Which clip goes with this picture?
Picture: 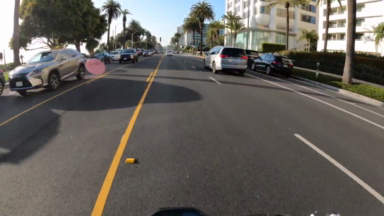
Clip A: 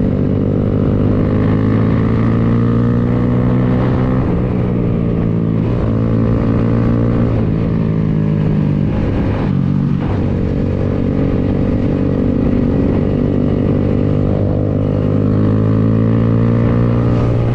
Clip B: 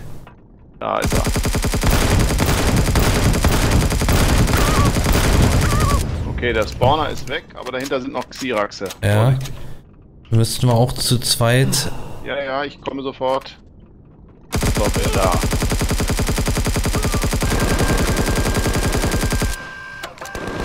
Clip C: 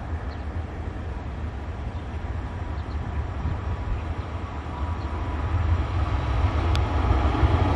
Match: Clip A